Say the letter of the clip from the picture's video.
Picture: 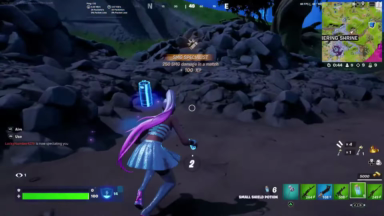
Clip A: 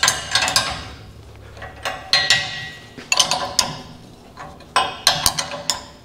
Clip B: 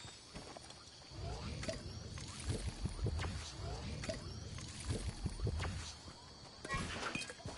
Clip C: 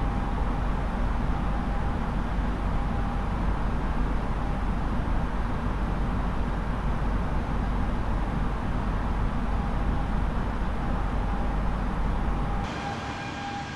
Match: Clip B